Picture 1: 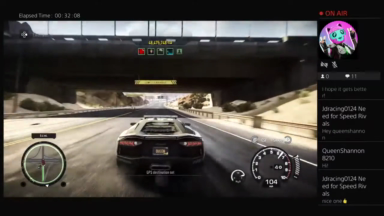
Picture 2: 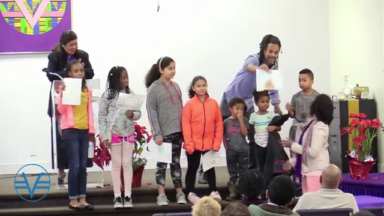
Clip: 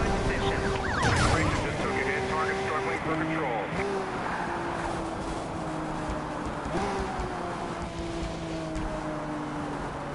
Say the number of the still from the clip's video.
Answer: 1